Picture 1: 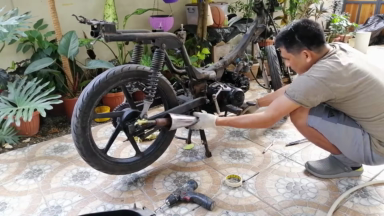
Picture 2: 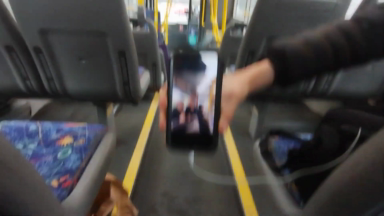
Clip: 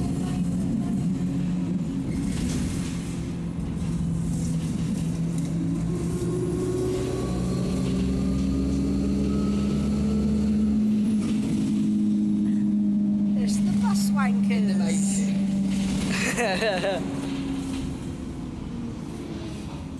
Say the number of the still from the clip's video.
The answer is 2